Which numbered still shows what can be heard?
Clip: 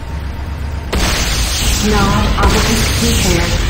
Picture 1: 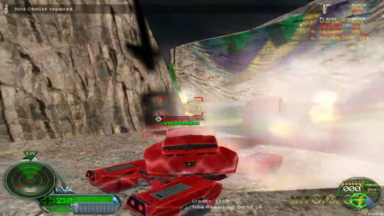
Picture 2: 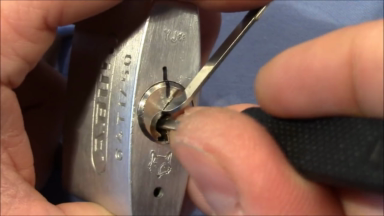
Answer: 1